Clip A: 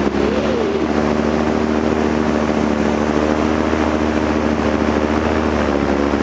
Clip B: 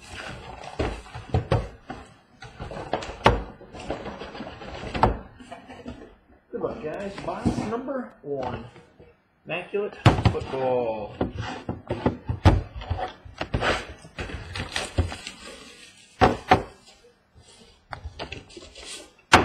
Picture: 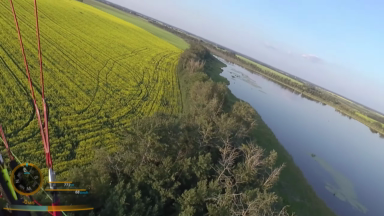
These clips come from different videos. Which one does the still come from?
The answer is A